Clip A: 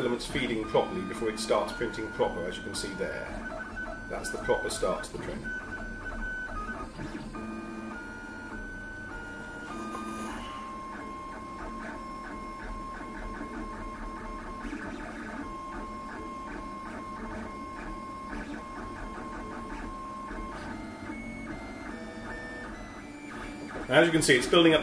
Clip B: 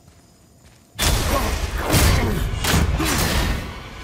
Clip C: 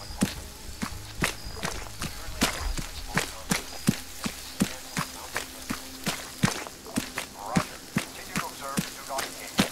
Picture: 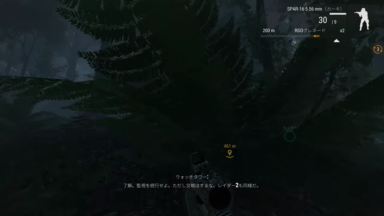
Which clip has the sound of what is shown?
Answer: C